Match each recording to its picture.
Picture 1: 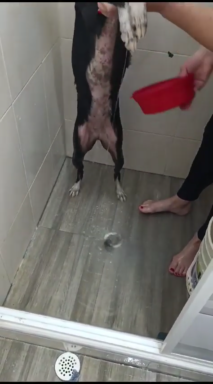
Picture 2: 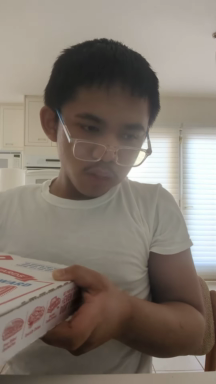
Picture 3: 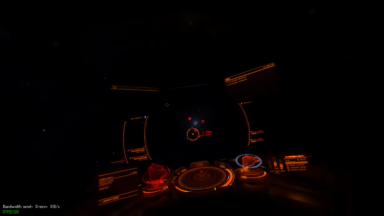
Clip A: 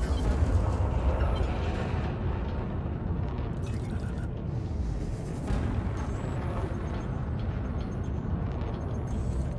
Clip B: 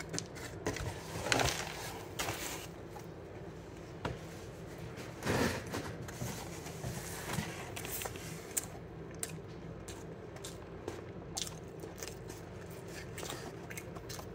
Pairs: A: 3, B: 2